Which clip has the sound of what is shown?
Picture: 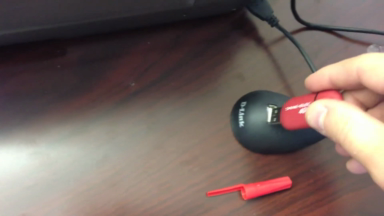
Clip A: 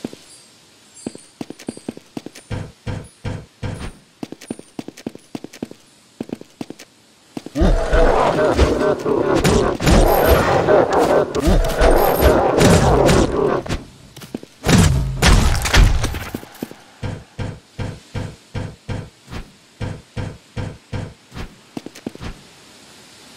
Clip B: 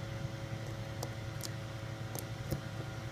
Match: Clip B